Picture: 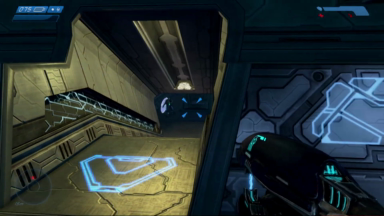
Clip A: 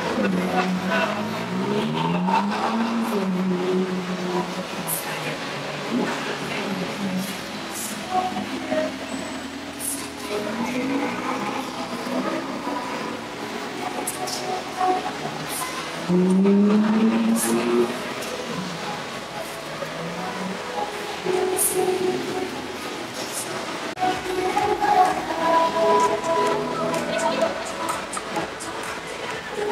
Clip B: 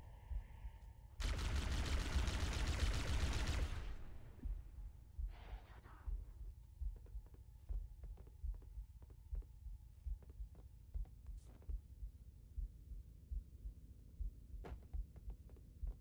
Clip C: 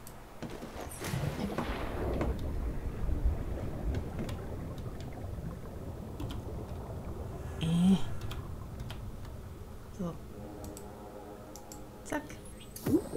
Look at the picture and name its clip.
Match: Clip B